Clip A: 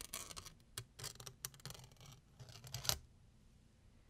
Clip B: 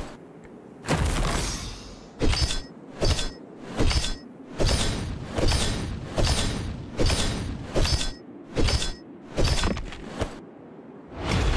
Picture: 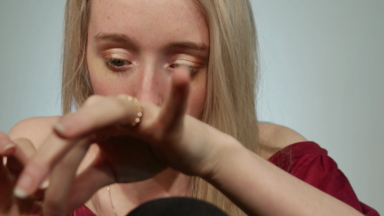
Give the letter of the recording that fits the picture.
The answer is A